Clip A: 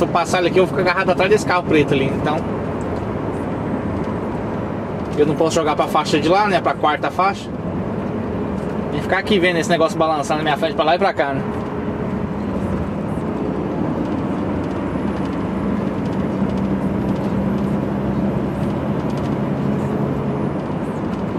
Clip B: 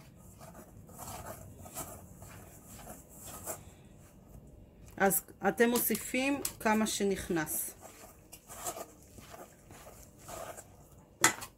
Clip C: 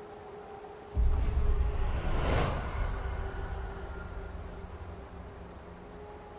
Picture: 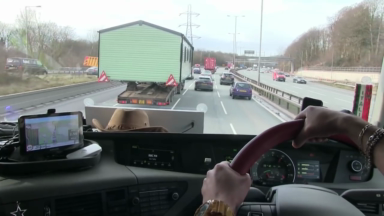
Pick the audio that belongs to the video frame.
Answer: A